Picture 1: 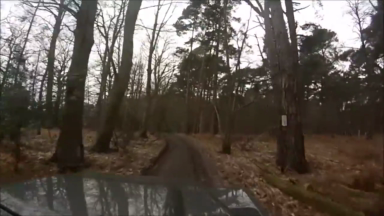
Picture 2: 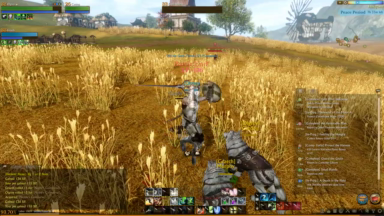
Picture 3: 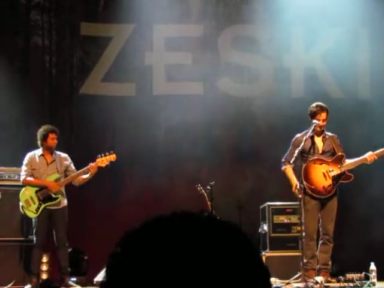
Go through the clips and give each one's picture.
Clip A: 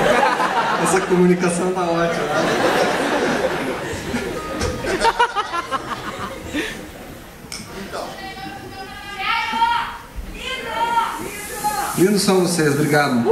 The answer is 3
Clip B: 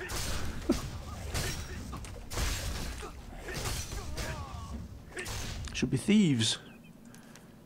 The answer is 2